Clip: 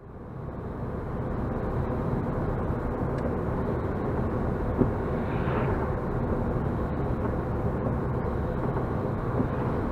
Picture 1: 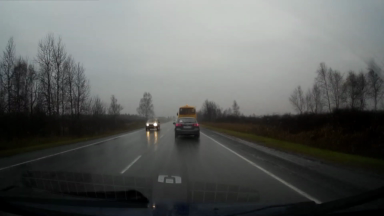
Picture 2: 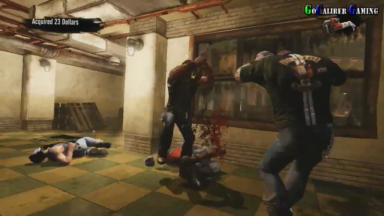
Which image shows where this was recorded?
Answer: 1